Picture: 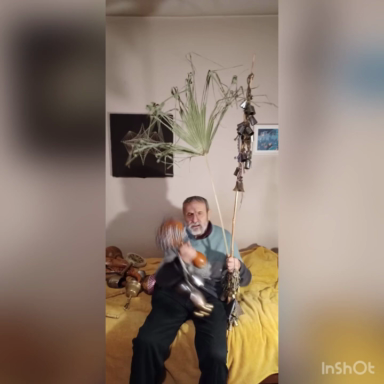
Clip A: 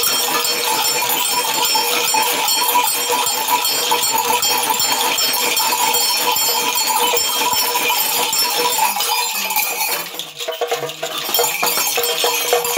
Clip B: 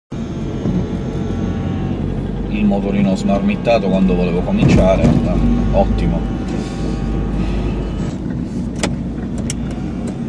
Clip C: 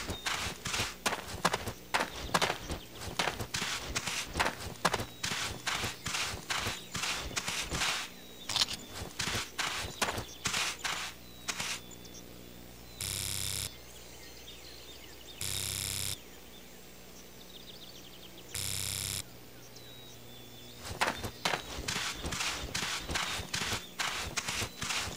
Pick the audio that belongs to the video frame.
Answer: A